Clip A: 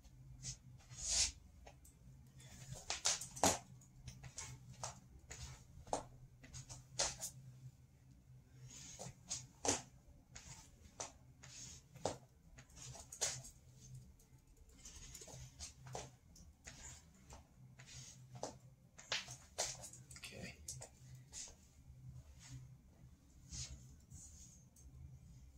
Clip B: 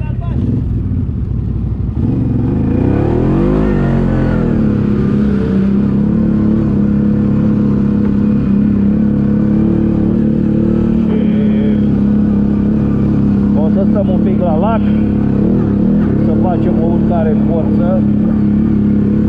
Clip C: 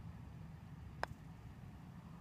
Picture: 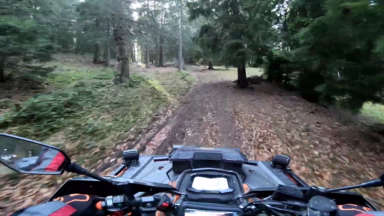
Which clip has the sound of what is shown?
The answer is B